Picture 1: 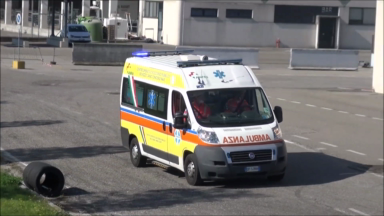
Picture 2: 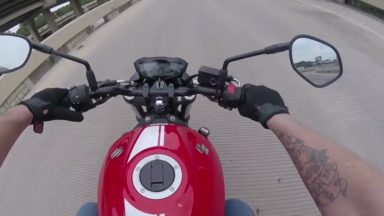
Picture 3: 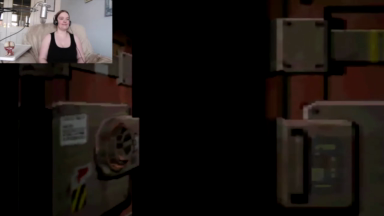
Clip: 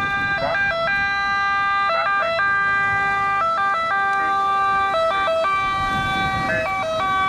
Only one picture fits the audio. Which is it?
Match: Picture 1